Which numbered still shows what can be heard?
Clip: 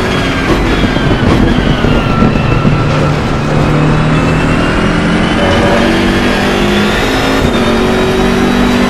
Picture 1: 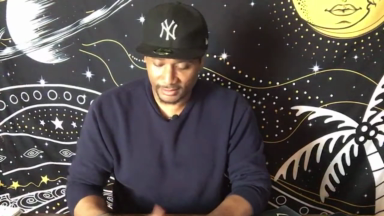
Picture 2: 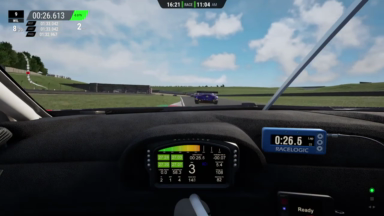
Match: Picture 2